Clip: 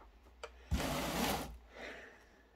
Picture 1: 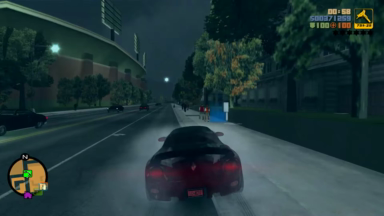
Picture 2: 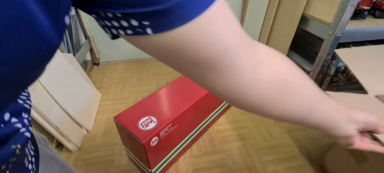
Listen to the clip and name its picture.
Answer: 2